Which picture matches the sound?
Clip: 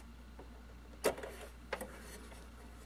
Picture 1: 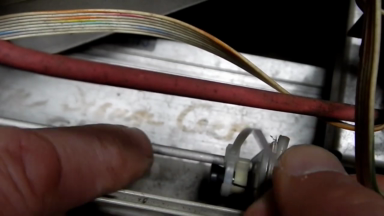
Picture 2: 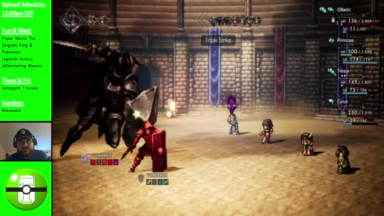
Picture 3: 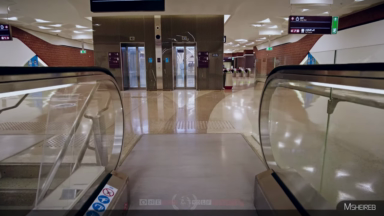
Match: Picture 1